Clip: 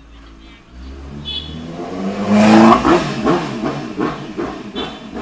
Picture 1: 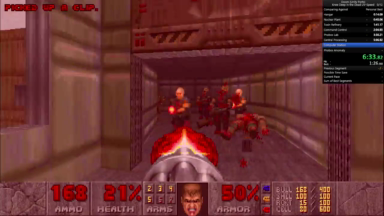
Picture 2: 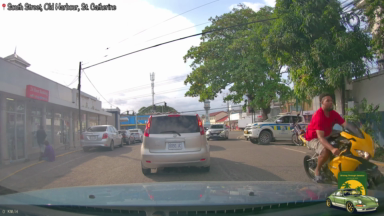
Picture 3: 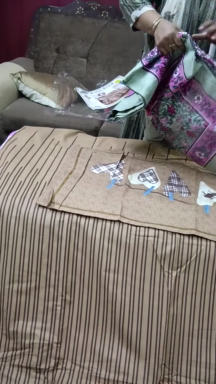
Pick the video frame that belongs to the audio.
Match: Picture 2